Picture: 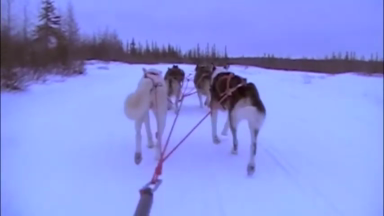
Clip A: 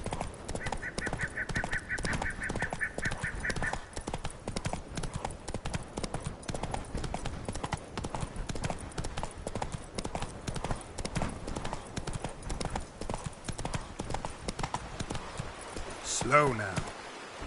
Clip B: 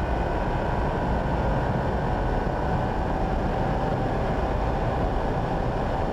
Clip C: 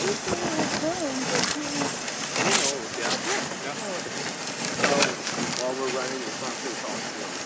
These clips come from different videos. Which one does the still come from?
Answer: C